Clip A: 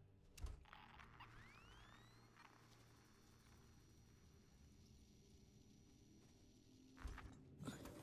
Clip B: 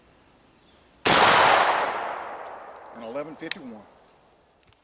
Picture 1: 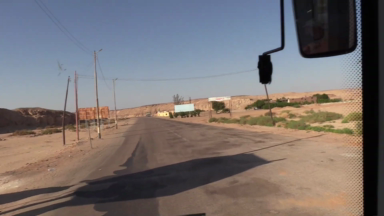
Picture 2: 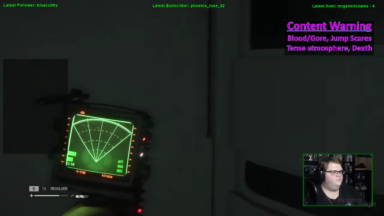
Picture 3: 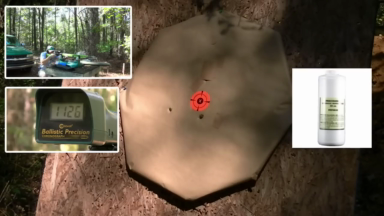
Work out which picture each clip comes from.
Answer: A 2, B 3